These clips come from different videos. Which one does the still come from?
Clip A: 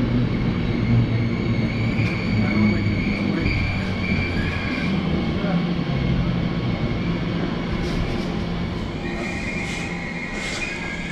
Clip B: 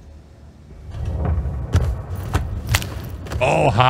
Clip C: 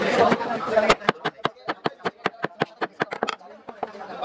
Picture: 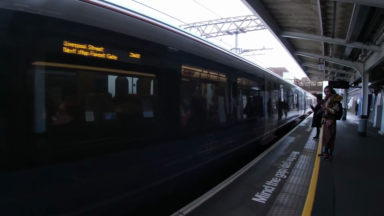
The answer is A